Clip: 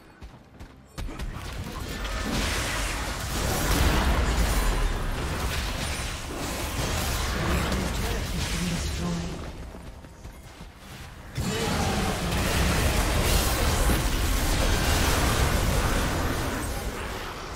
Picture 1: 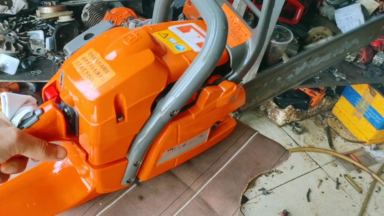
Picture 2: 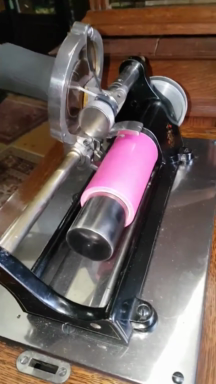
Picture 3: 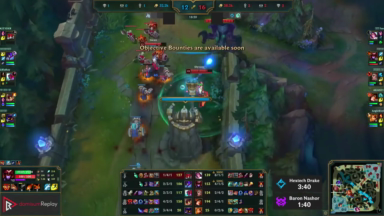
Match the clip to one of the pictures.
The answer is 3